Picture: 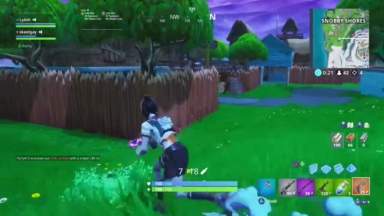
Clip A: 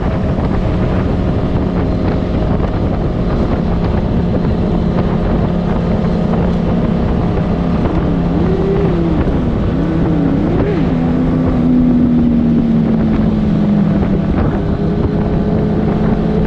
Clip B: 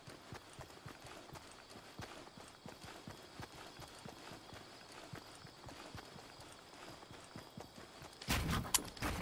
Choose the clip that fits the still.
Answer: B